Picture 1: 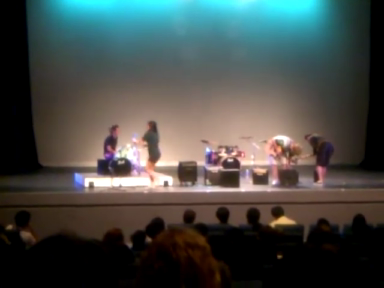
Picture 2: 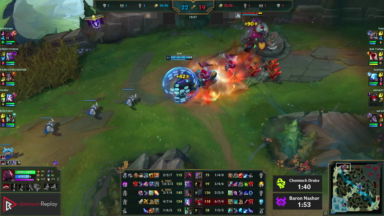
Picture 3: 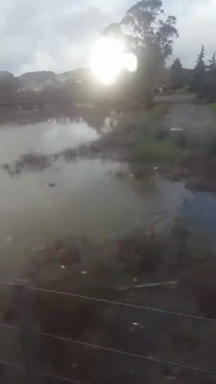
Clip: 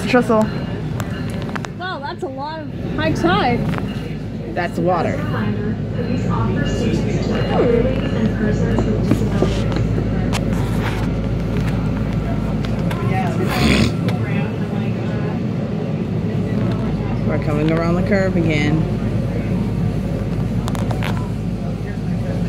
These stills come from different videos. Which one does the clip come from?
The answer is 3